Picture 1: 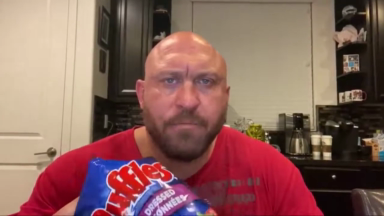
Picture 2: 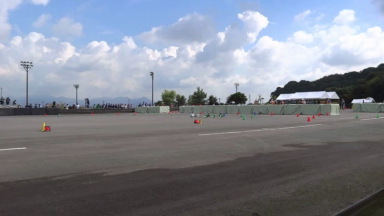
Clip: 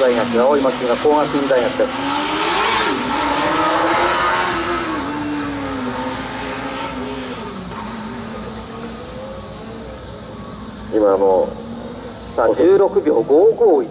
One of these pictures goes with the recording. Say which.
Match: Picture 2